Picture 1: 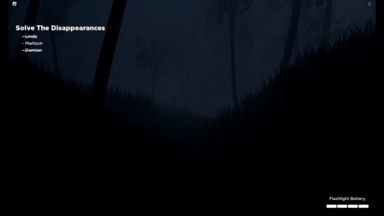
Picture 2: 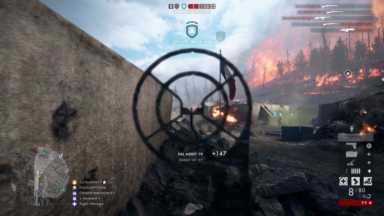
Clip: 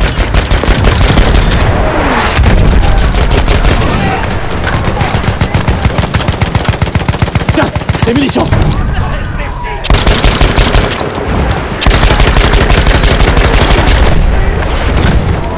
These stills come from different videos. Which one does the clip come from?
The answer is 2